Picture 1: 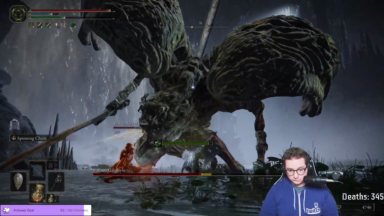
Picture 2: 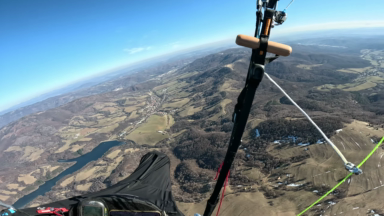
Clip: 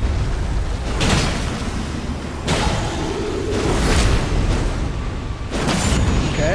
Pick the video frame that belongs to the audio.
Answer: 1